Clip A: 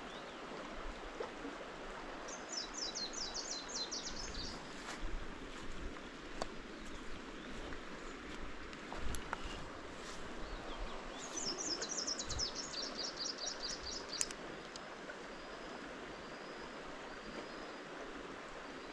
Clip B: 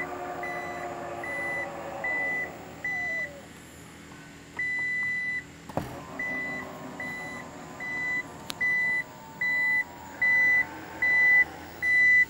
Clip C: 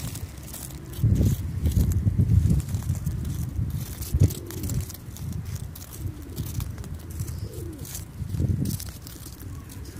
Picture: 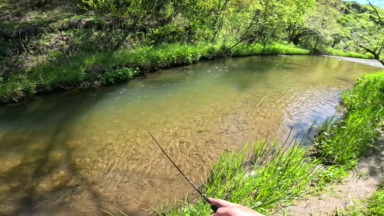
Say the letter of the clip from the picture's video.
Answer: A